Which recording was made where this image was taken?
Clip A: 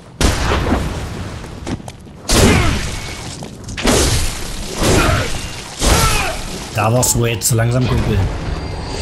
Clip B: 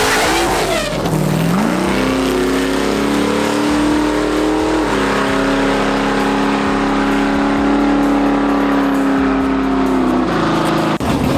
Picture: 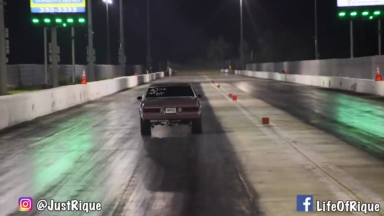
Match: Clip B